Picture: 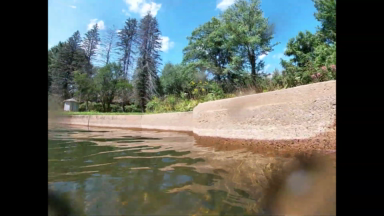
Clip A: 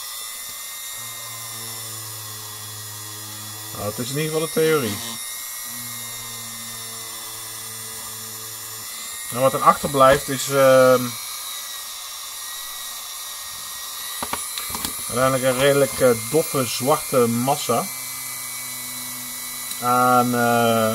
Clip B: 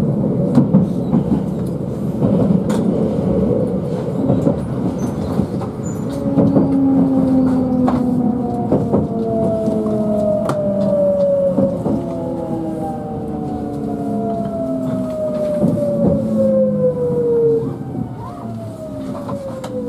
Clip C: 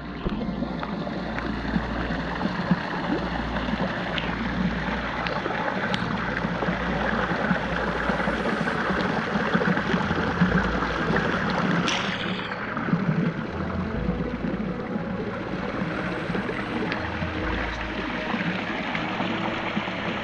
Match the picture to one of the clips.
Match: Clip C